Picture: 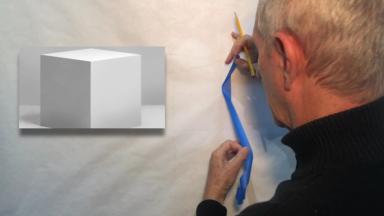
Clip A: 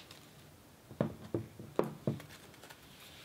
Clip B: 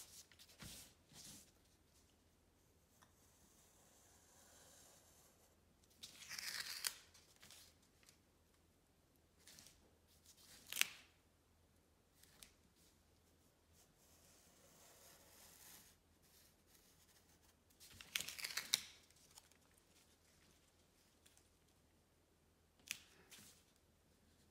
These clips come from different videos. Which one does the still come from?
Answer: B